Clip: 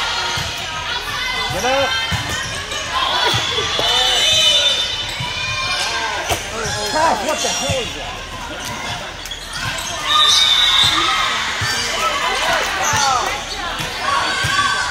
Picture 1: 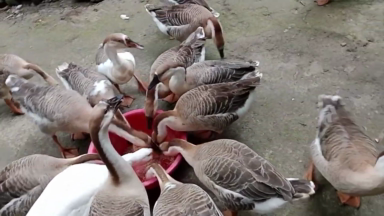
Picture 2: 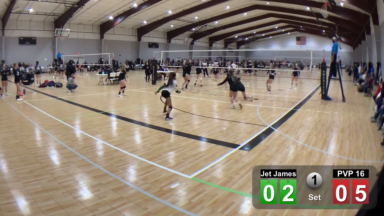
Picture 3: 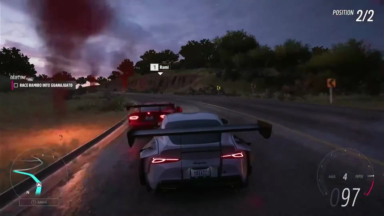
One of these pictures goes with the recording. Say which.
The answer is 2